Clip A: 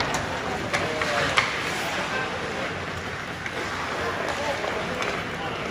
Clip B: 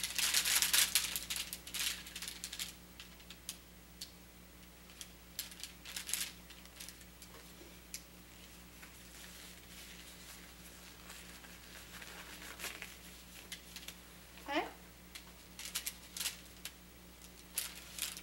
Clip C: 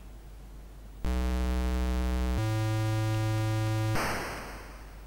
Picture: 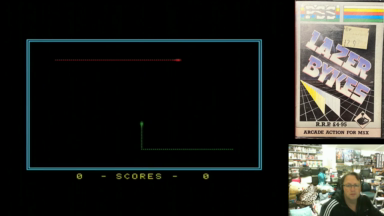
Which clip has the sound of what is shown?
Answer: C